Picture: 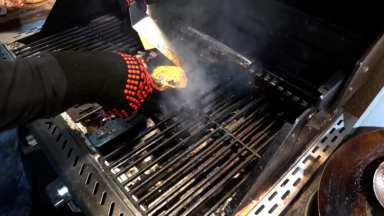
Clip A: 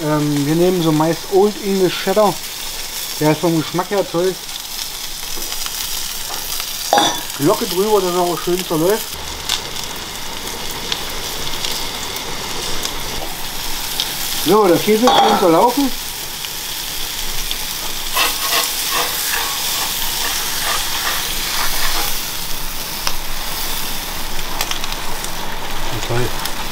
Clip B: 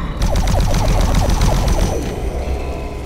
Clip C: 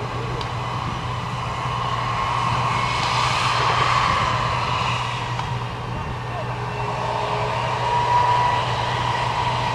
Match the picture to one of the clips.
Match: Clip A